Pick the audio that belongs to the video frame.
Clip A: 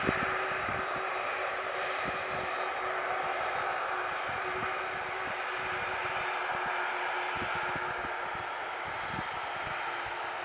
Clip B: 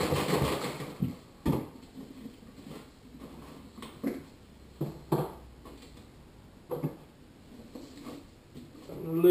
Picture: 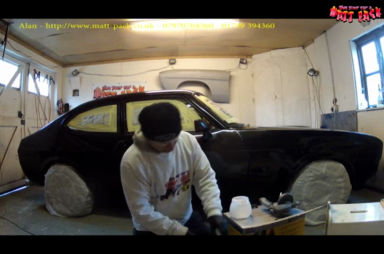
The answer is B